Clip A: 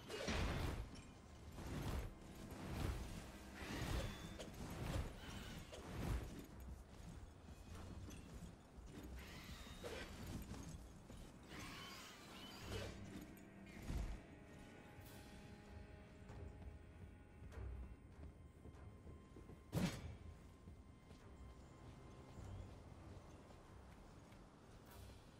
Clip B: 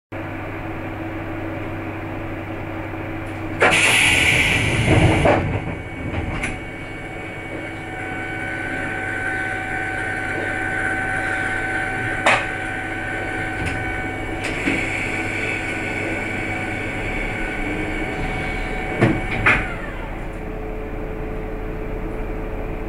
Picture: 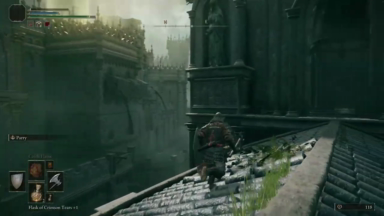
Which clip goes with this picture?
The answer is A